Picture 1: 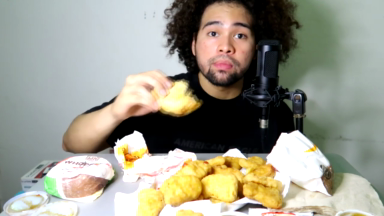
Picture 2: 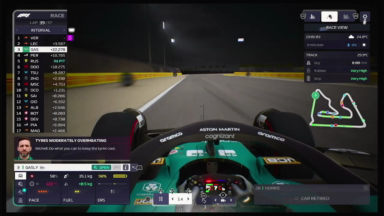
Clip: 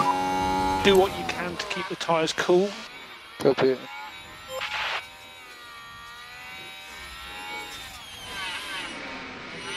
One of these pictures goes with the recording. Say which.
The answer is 2